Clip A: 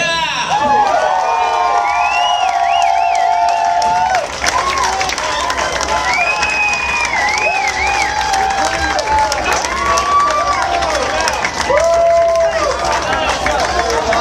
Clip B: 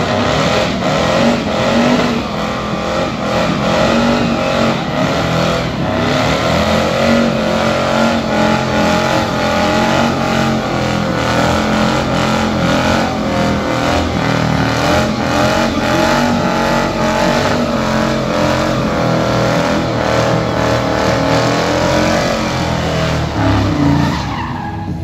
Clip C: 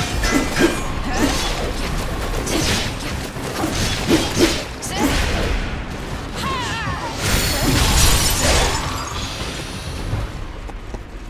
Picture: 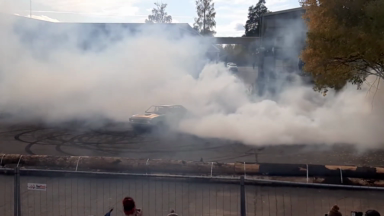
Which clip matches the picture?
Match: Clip B